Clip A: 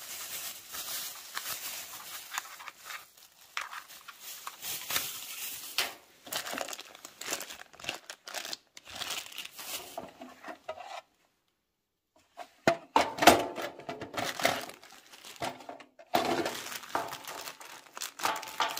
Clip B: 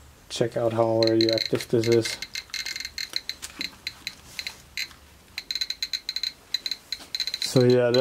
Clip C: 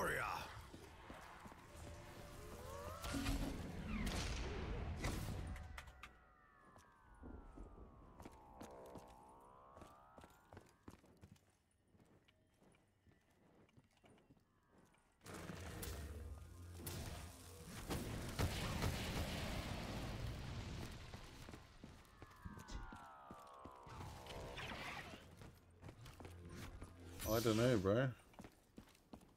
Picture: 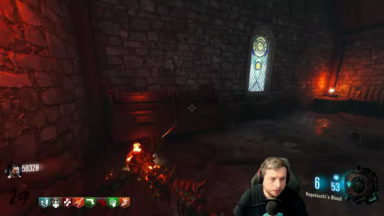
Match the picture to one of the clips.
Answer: C